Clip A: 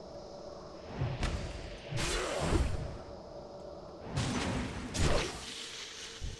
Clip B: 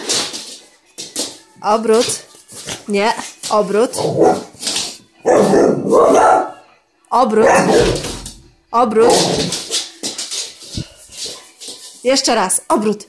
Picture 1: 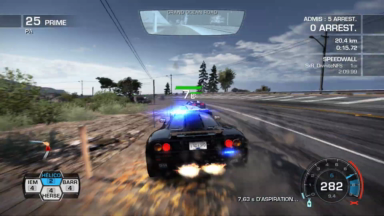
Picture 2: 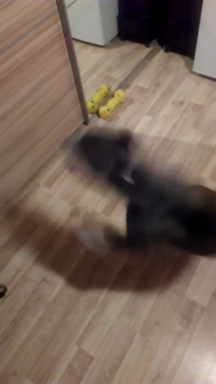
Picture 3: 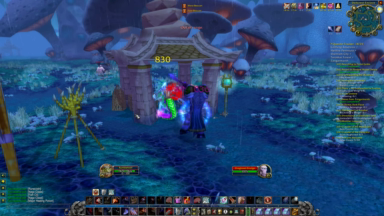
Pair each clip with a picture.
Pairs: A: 3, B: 2